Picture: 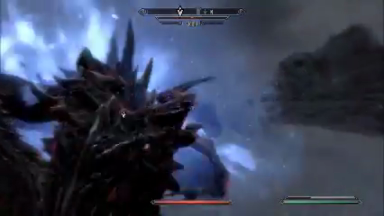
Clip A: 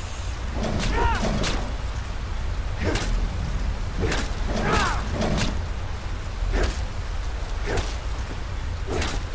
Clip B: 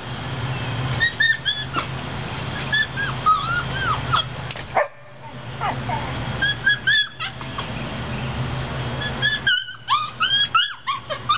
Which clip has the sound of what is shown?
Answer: A